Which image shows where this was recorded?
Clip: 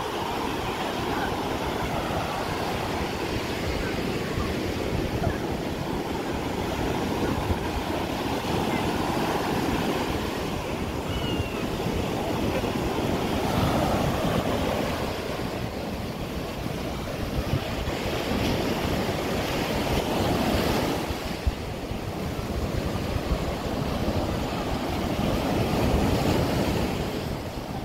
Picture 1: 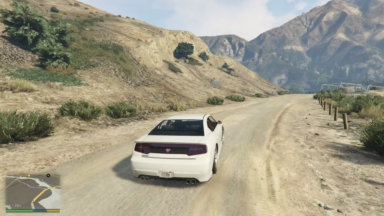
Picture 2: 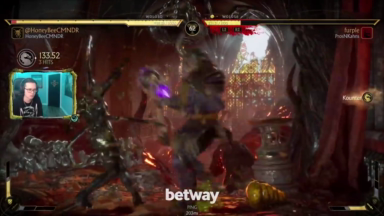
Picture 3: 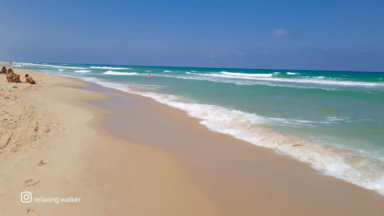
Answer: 3